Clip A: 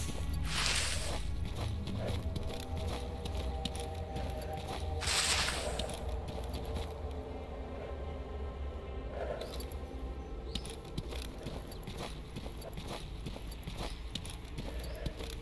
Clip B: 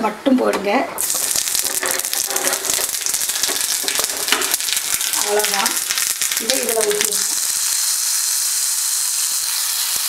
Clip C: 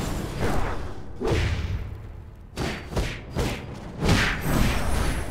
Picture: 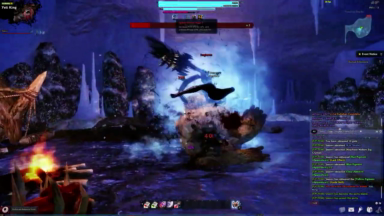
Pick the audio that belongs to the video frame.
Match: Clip C